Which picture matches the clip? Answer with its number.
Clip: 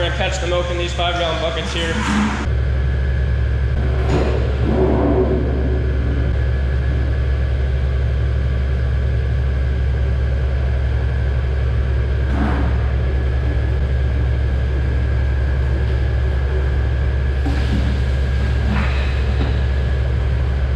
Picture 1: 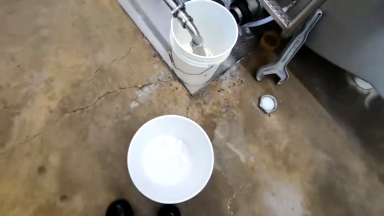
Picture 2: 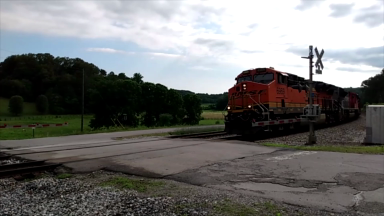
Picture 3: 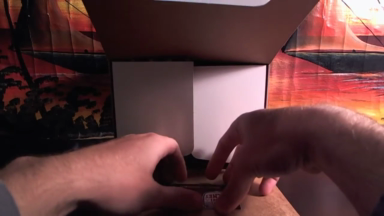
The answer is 1